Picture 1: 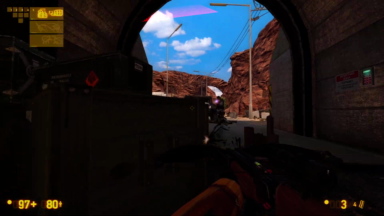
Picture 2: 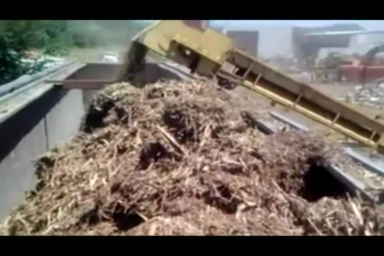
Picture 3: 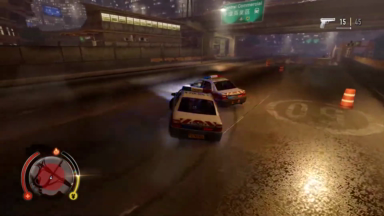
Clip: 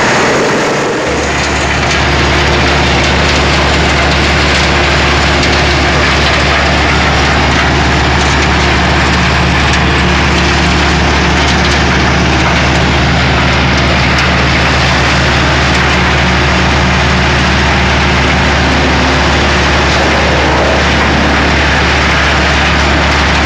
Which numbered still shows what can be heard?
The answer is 2